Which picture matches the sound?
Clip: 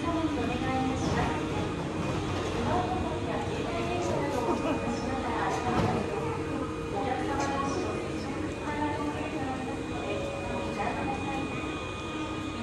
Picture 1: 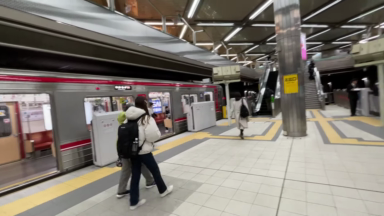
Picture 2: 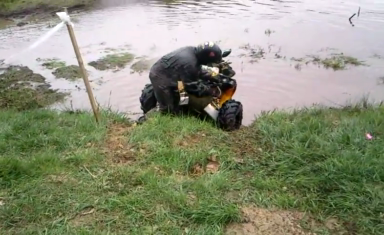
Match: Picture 1